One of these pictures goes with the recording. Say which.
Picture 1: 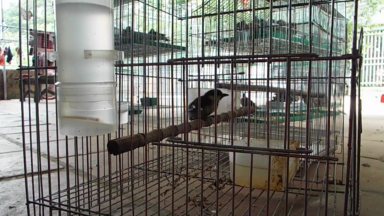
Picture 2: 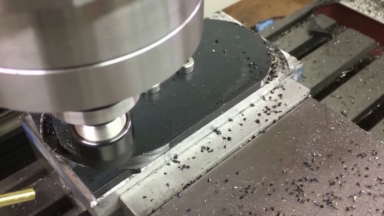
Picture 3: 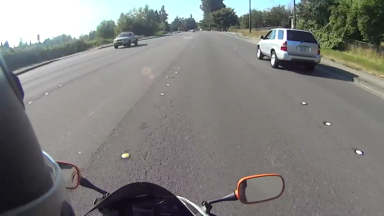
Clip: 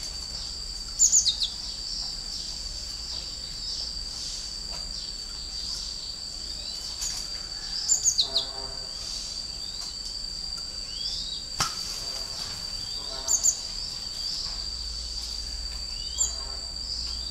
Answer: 1